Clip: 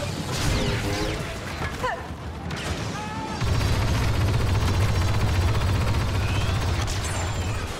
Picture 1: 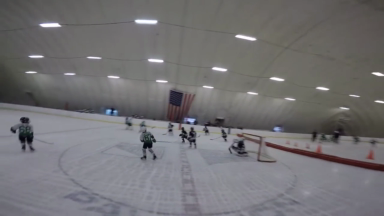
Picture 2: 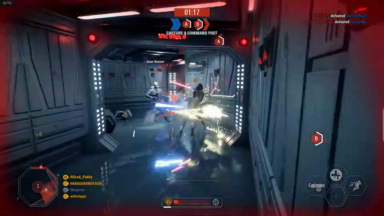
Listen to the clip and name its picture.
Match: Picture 2